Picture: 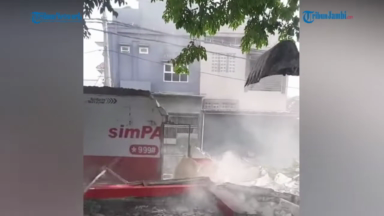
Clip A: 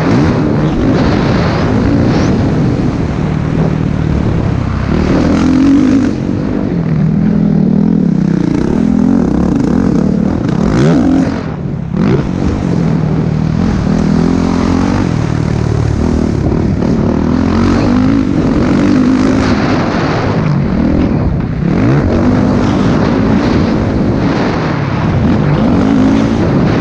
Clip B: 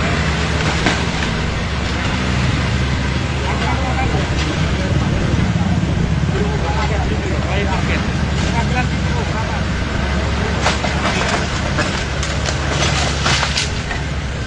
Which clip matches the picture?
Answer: B